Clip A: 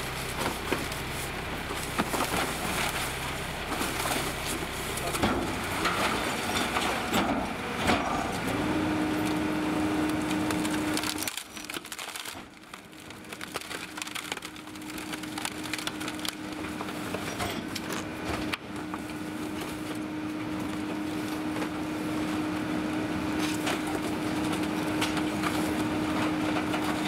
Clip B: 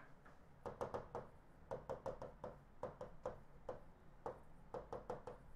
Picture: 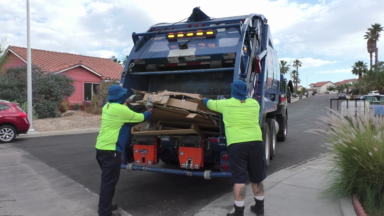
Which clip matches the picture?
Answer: A